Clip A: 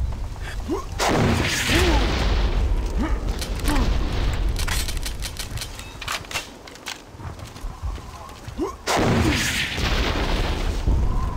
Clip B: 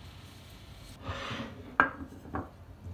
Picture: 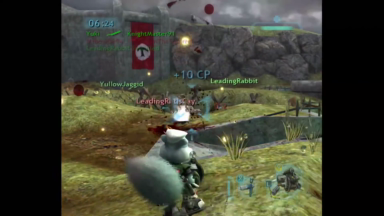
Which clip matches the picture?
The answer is A